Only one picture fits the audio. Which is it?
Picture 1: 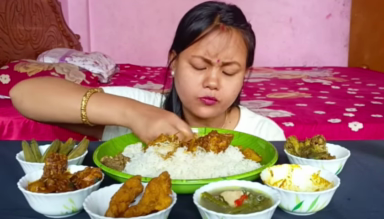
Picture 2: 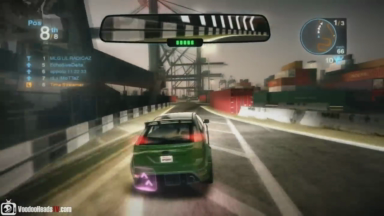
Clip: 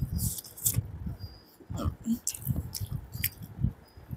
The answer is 1